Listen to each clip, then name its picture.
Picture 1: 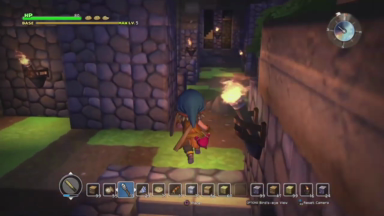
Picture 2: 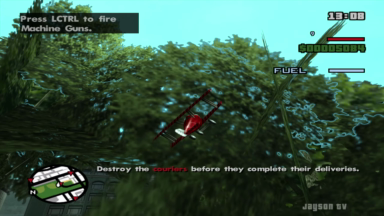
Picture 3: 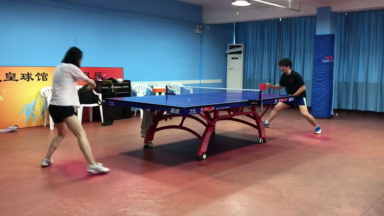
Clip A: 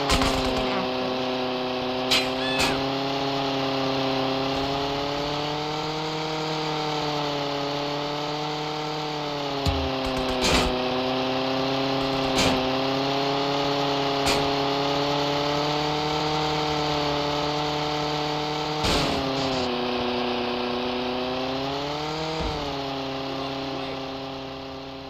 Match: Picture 2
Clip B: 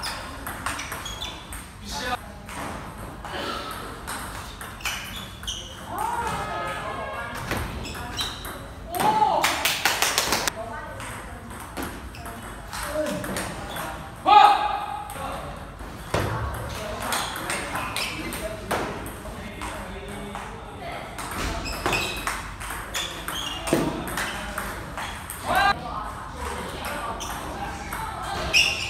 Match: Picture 3